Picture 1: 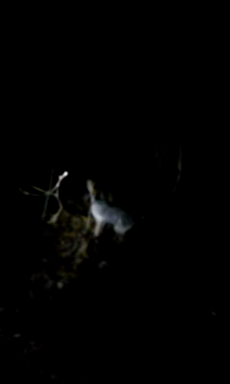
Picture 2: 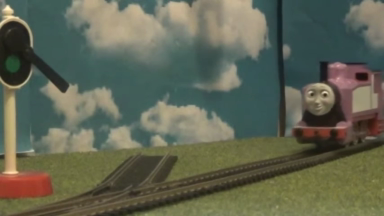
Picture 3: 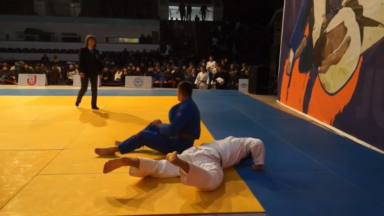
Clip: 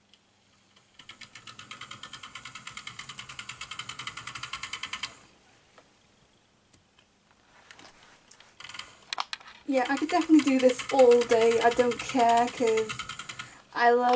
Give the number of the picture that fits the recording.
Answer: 2